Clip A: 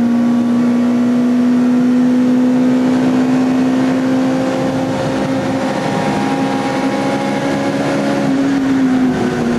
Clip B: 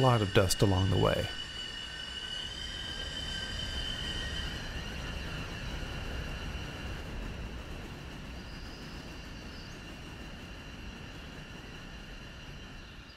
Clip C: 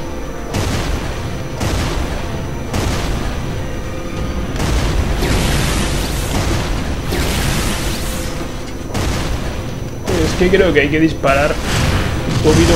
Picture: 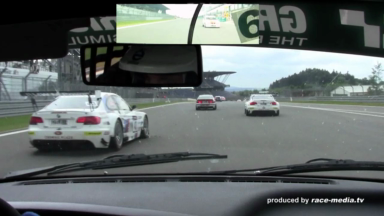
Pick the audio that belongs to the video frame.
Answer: A